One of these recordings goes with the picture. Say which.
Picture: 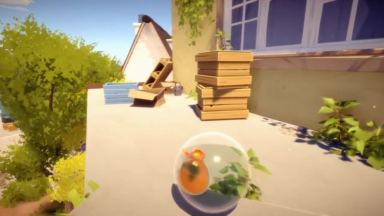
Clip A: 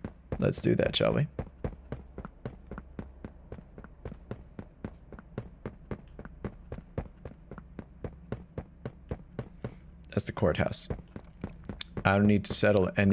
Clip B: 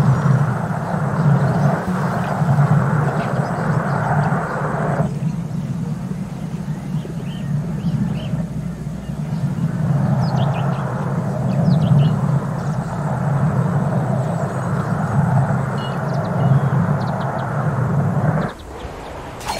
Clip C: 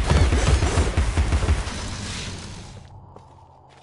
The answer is B